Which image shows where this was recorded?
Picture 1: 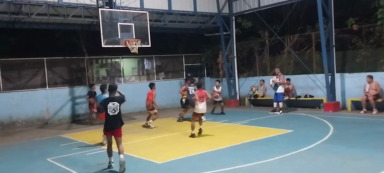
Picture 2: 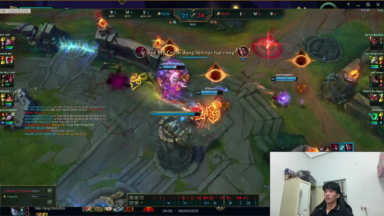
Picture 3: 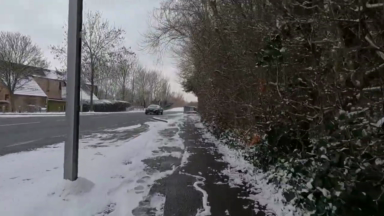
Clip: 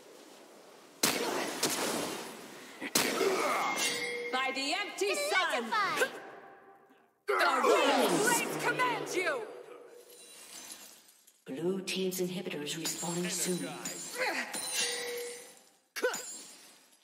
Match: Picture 2